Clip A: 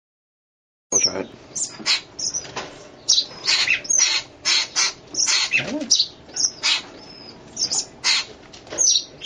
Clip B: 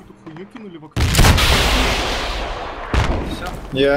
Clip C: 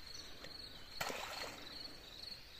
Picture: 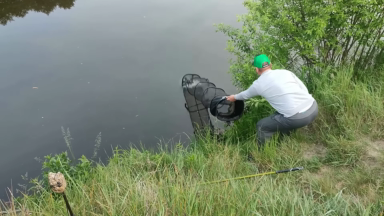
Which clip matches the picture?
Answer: C